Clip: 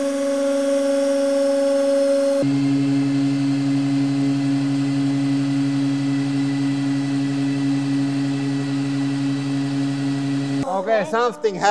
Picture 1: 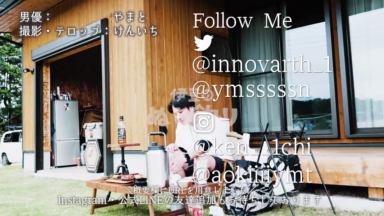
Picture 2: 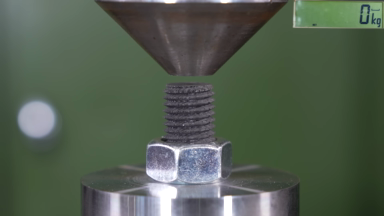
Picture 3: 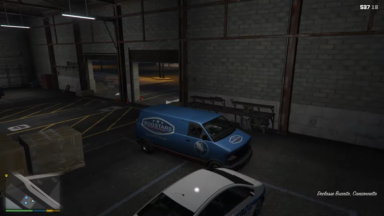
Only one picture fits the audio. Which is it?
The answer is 2